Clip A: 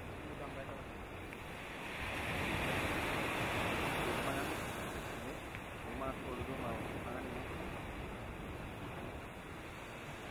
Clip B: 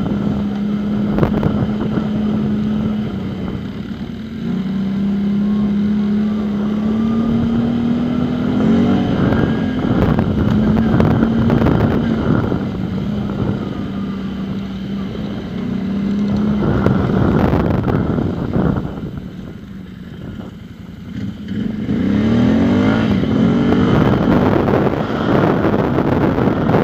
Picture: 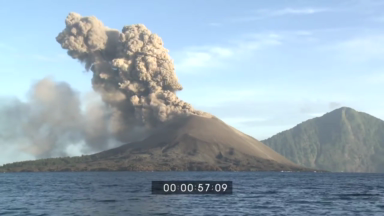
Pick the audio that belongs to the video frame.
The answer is A